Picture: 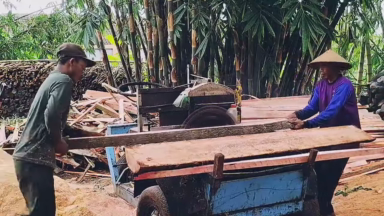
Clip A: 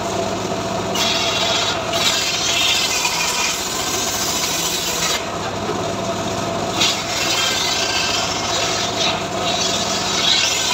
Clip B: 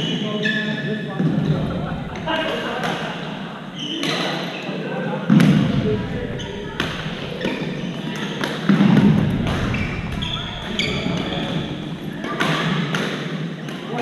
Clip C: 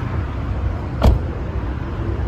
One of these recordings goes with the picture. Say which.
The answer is A